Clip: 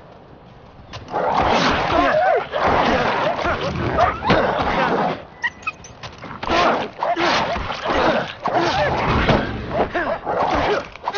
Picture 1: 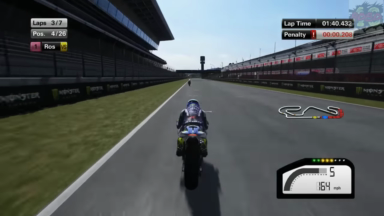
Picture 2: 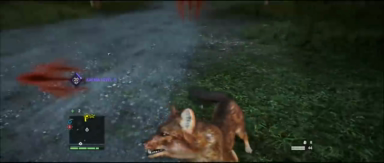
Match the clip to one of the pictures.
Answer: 2